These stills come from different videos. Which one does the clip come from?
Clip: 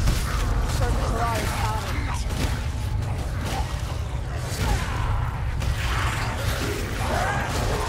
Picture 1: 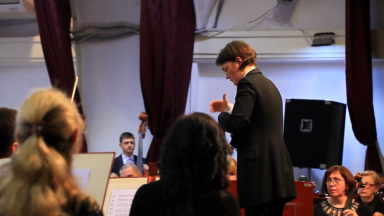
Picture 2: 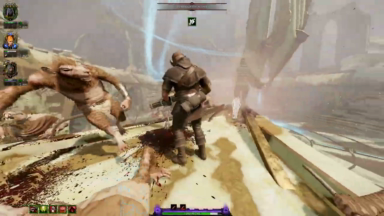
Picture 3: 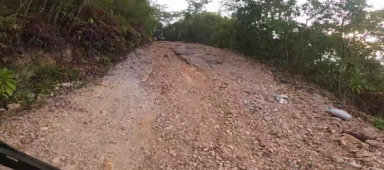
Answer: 2